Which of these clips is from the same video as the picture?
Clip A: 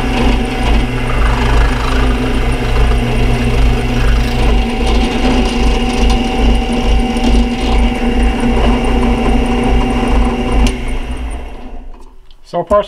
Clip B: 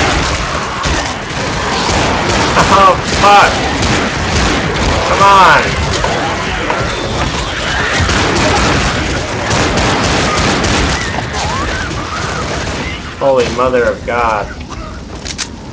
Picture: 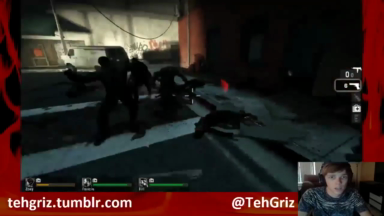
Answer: B